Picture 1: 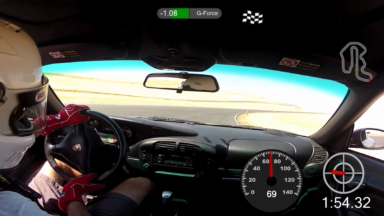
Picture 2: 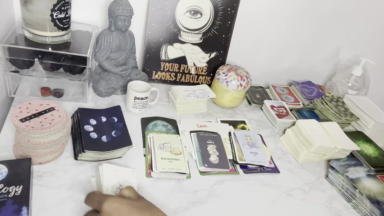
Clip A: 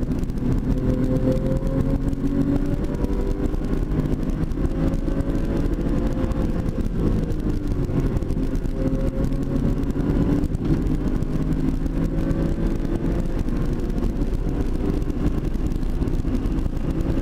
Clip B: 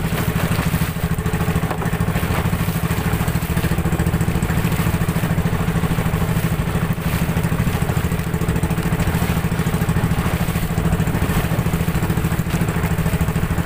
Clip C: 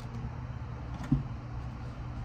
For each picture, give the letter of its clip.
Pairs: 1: A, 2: C